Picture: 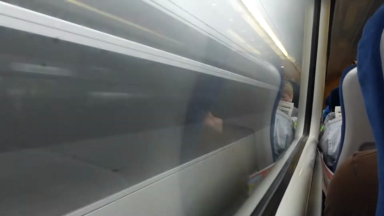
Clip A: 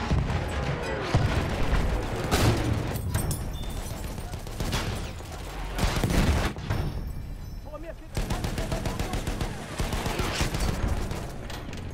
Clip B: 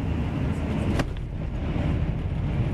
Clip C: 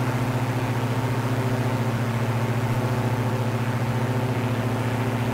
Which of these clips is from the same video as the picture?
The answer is B